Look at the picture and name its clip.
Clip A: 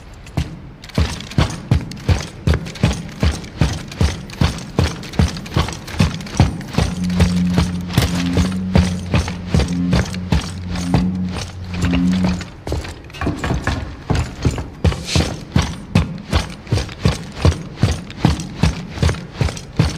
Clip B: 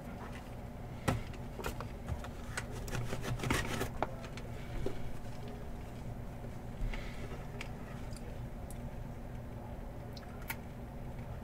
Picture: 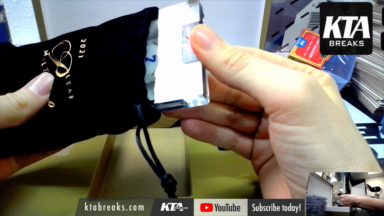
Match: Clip B